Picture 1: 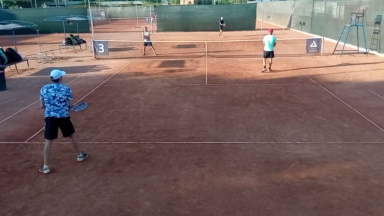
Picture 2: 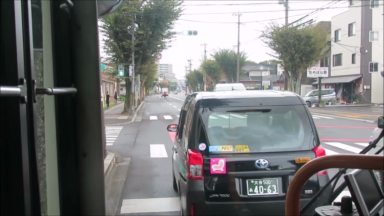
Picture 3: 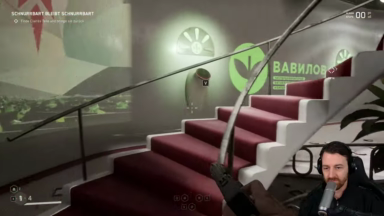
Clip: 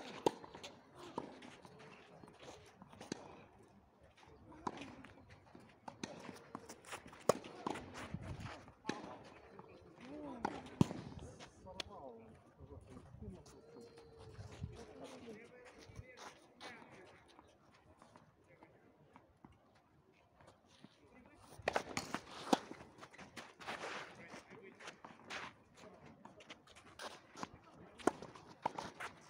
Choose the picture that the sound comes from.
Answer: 1